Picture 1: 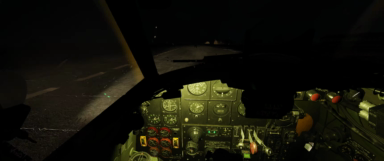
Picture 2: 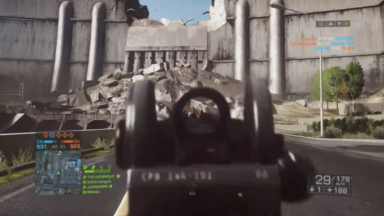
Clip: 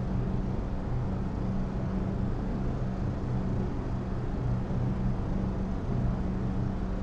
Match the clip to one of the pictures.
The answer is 1